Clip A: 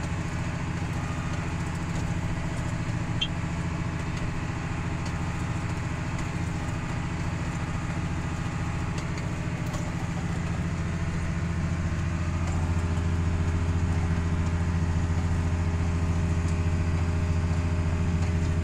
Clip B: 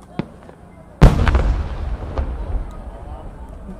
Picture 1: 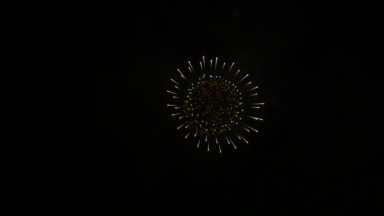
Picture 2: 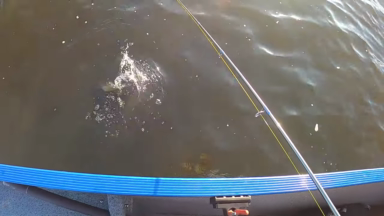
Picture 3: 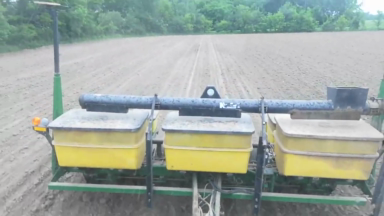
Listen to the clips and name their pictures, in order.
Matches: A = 3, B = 1